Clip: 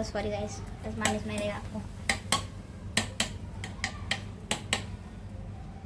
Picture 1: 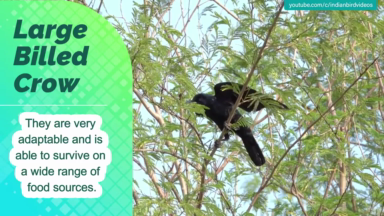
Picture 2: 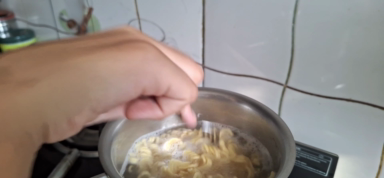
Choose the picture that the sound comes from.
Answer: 2